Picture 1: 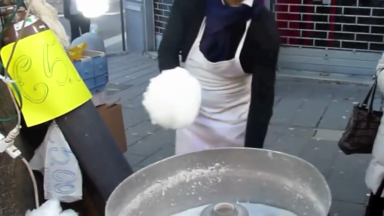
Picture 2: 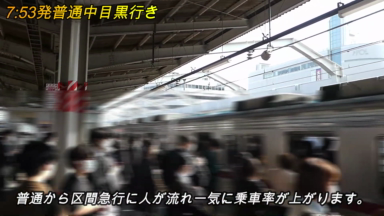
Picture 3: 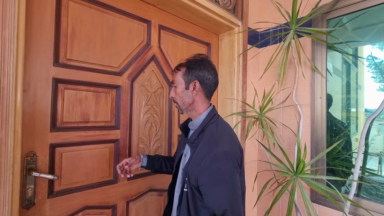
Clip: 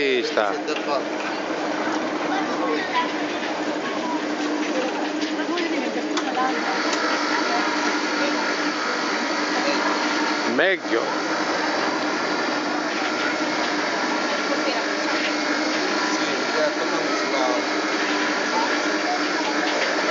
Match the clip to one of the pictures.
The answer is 1